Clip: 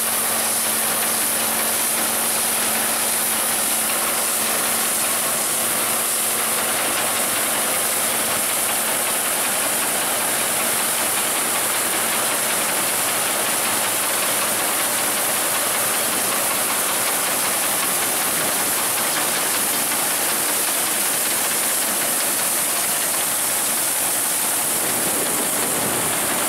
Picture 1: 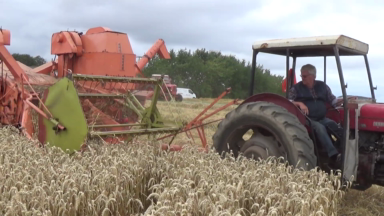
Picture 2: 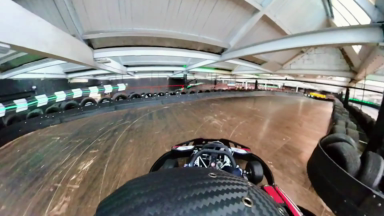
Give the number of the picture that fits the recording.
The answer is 1